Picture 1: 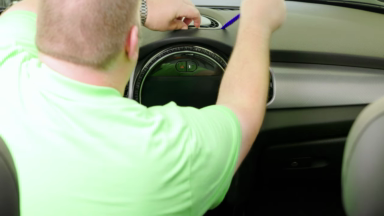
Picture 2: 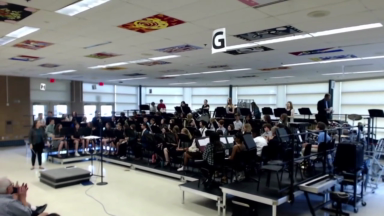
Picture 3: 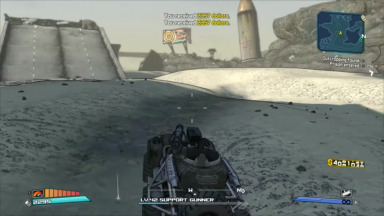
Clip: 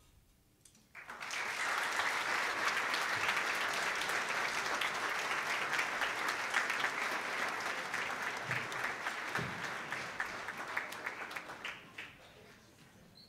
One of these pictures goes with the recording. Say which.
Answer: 2